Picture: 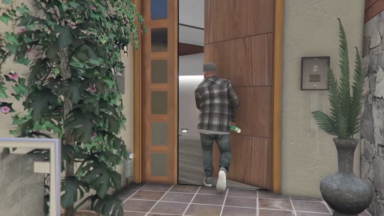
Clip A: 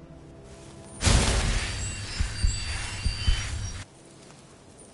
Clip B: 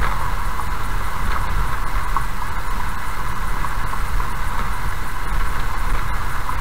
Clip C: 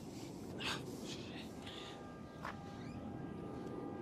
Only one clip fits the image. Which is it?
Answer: C